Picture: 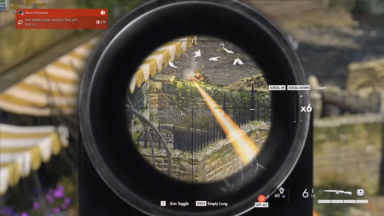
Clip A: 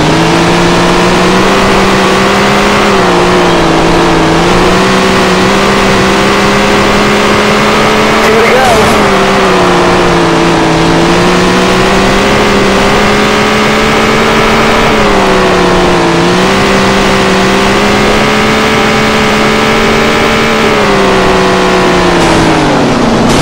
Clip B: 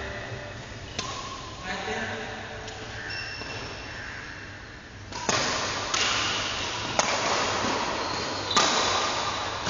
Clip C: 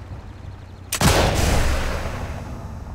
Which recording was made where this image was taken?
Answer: C